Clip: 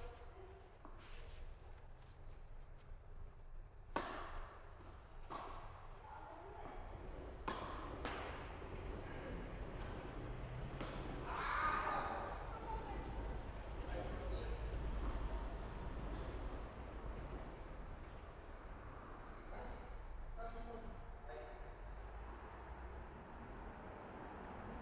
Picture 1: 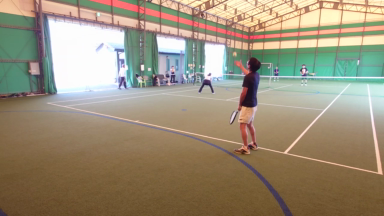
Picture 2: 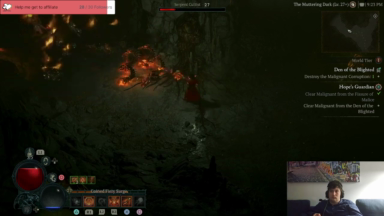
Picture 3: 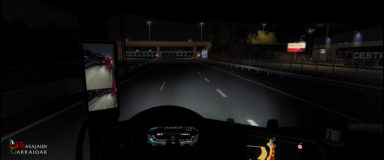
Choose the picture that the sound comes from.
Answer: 1